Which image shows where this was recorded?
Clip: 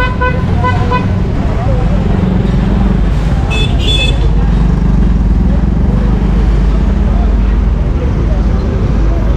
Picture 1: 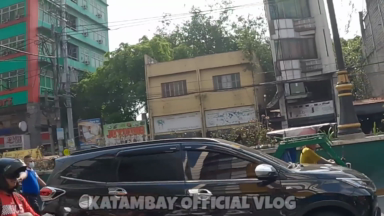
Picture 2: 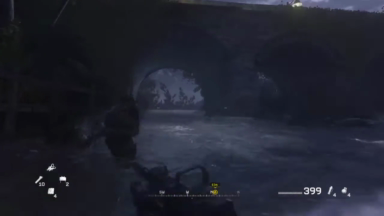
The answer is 1